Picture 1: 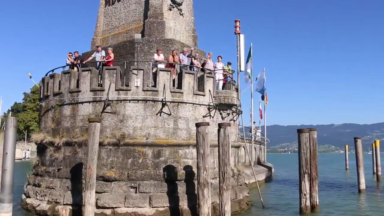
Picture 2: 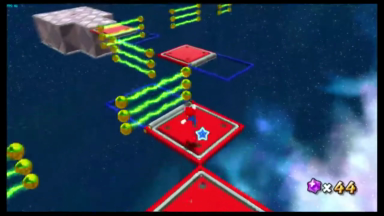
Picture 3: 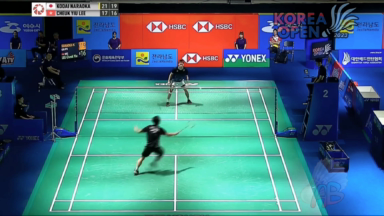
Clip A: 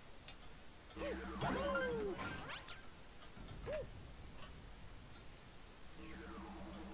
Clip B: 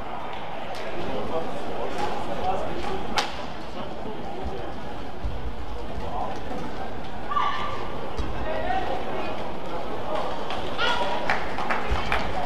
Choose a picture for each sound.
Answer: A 2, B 3